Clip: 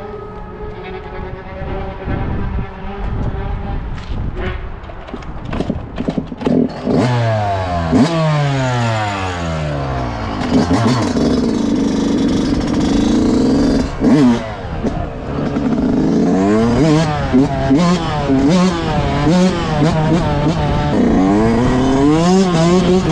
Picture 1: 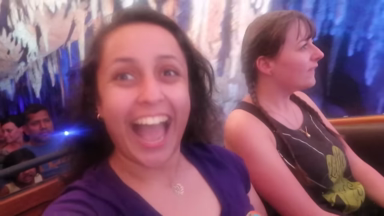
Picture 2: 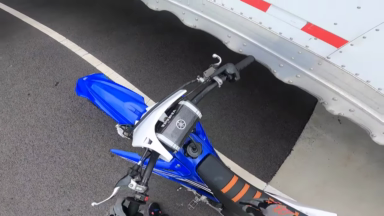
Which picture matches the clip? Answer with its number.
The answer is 2